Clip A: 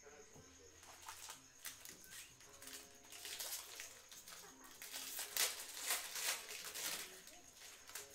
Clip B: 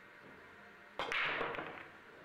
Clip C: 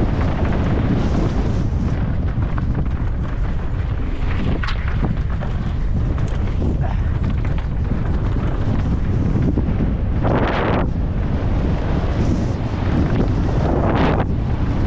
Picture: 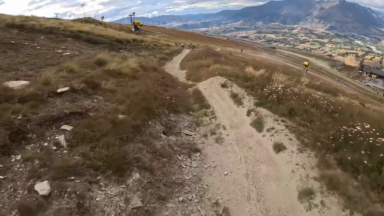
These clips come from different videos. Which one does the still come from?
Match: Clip C